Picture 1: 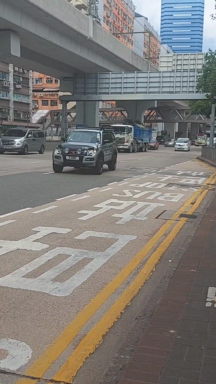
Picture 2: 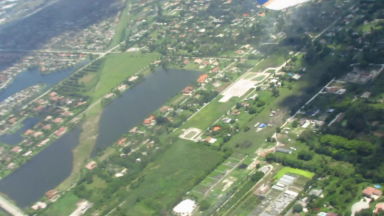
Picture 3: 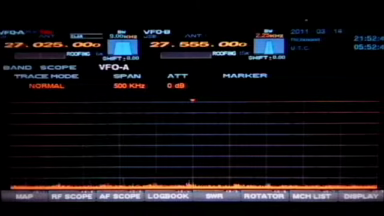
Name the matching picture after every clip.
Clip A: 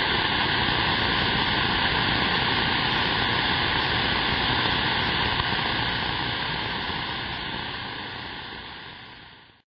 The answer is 3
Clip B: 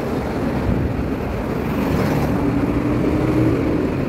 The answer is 1